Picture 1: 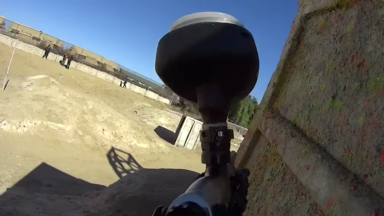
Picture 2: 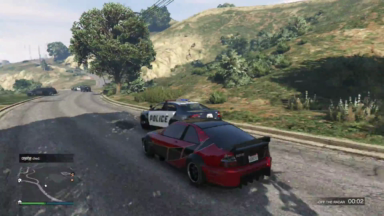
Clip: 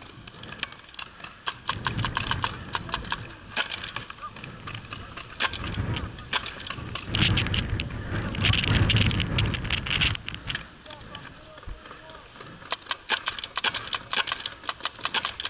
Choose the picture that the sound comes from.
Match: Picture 1